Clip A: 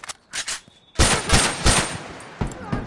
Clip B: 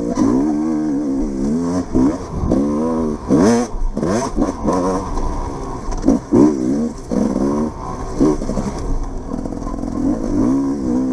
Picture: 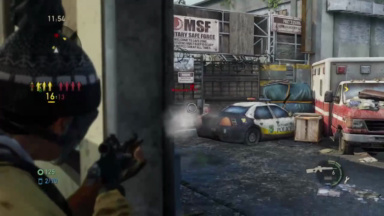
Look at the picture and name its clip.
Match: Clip A